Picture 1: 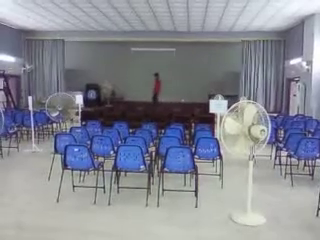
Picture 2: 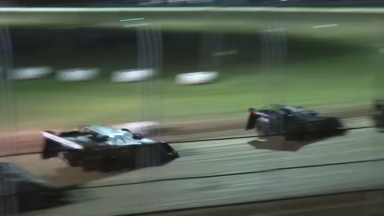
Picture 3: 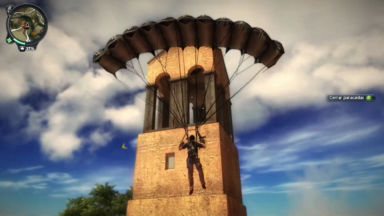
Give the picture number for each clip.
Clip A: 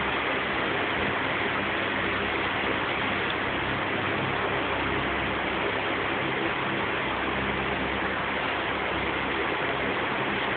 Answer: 1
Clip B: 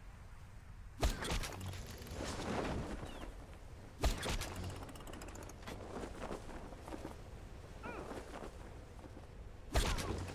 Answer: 3